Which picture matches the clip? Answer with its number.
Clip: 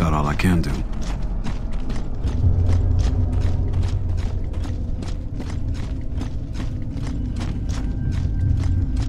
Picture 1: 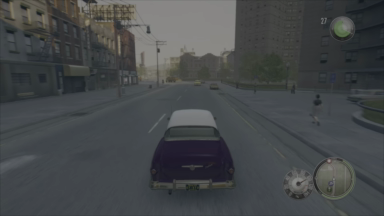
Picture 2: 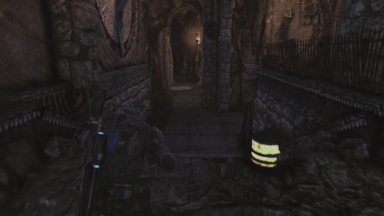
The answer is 2